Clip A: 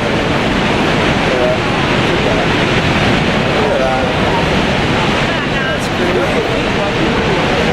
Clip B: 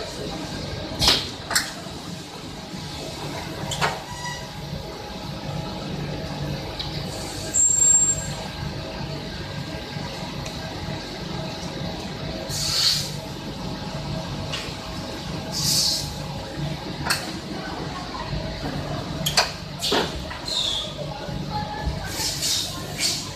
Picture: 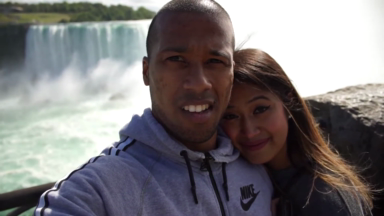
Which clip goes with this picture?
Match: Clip A